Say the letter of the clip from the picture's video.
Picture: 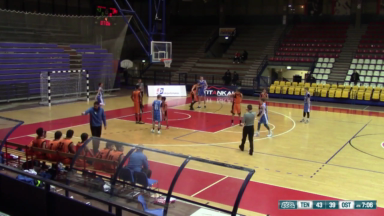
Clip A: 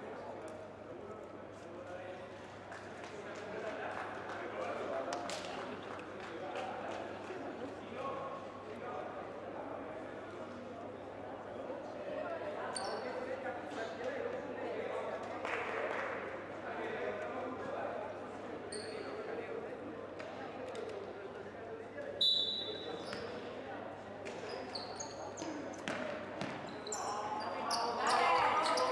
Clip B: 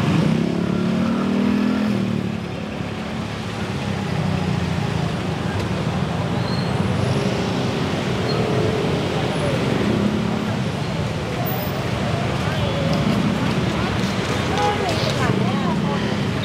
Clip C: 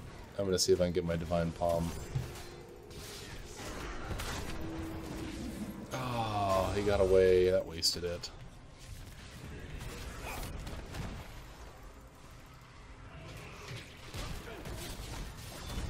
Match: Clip A